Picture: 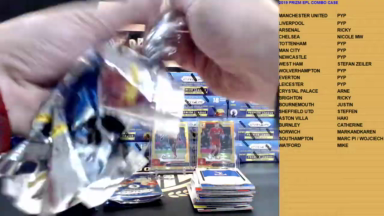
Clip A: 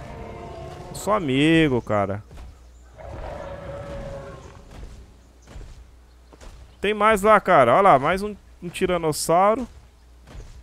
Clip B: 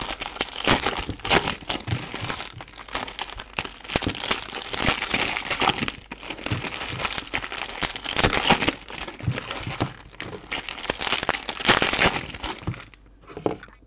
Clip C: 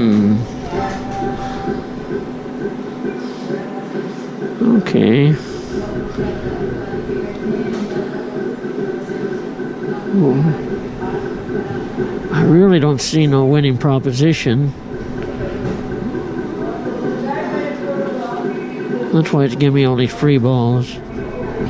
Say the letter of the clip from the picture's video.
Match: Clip B